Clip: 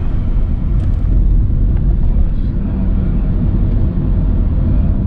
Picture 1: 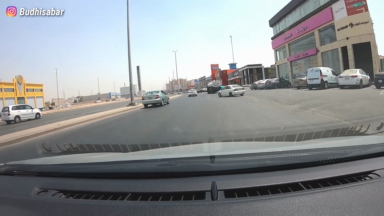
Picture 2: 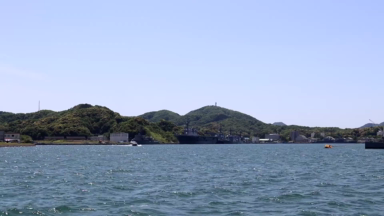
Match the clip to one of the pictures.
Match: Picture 1